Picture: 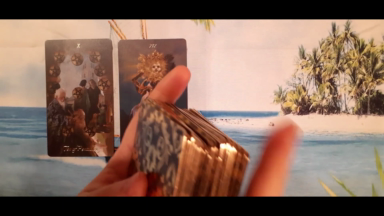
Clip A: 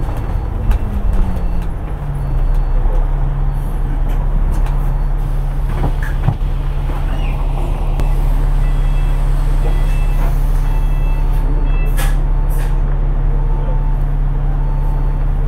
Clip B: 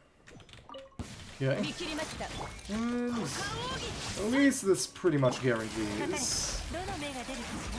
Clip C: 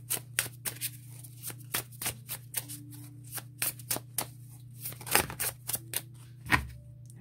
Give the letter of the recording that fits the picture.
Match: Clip C